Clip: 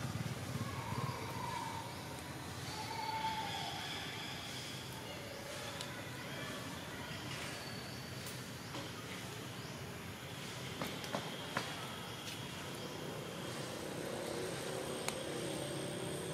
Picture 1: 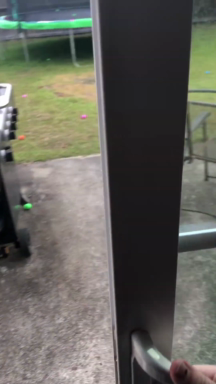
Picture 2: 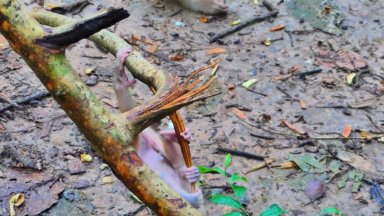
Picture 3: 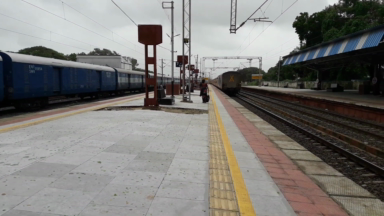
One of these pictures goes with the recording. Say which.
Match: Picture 2